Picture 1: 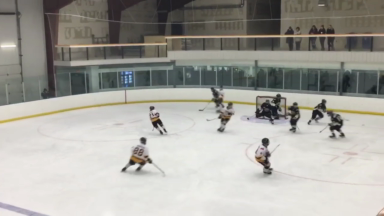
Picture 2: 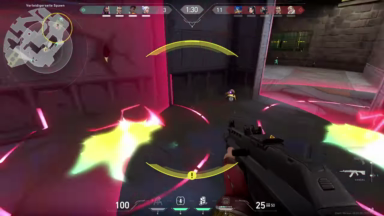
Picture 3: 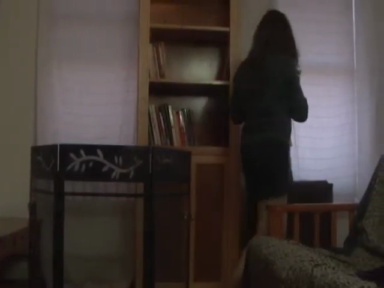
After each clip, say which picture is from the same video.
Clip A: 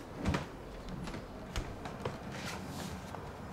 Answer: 3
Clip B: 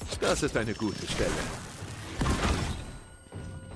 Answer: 2